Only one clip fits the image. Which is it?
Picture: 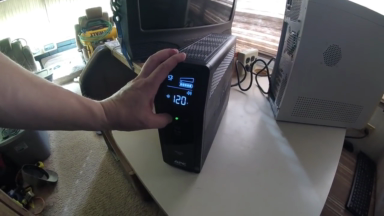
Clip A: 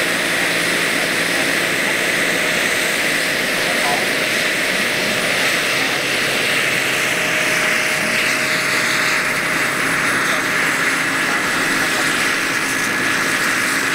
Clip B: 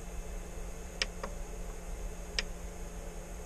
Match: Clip B